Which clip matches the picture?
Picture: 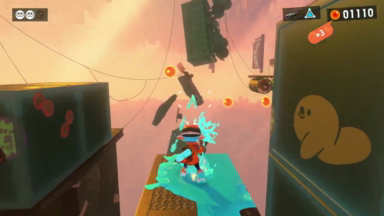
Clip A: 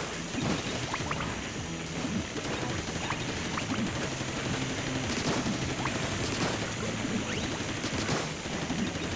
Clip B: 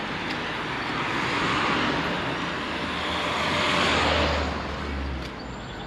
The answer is A